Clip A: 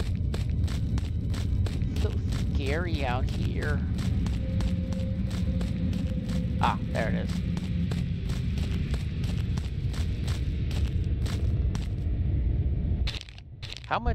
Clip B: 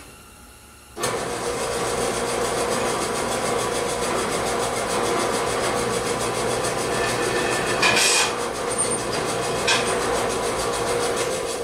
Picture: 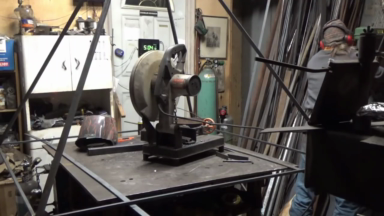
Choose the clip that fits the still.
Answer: B